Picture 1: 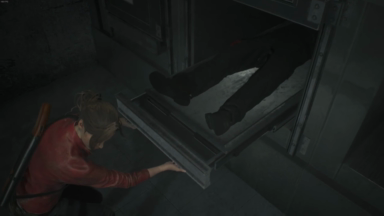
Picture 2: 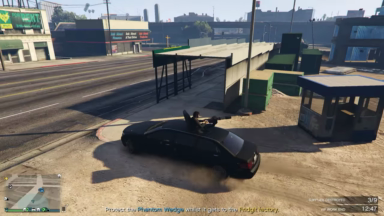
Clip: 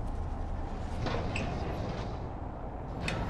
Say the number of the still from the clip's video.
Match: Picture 1